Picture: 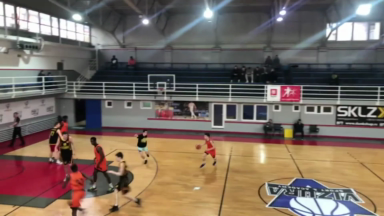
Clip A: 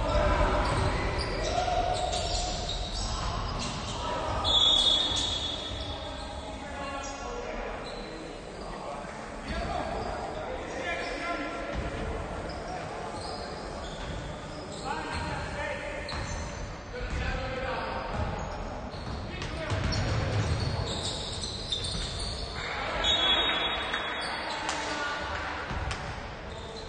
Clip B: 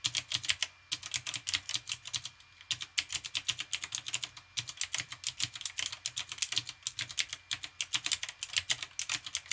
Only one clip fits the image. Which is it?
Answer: A